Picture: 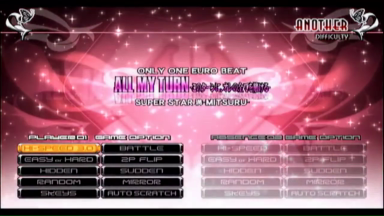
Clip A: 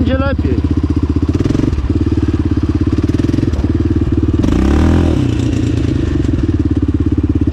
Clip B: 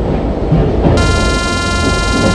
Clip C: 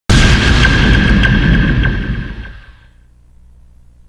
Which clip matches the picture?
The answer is C